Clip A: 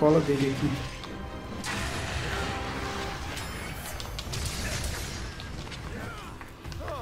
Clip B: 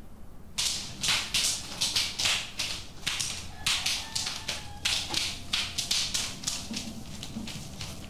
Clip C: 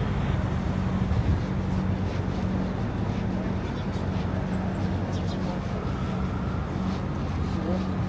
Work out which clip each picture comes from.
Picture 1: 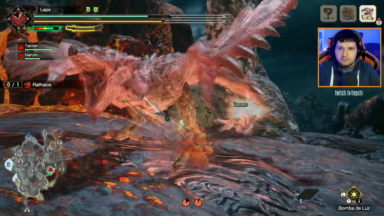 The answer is A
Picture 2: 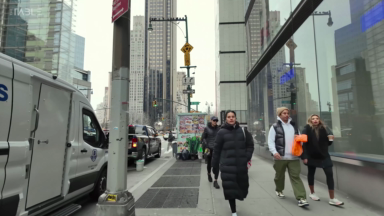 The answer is C